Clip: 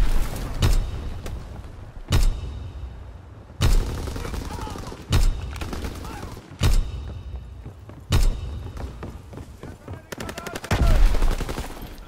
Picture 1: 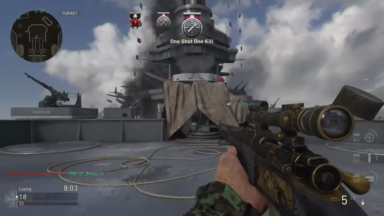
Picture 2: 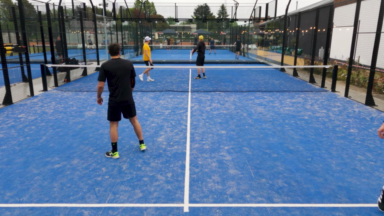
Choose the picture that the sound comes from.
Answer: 1